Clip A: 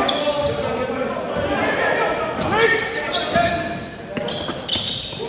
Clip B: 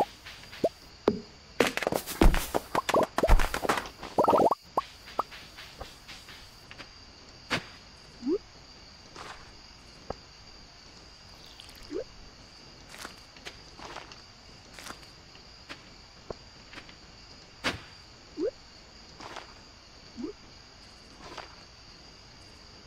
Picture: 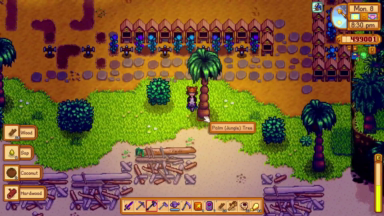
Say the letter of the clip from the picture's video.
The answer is B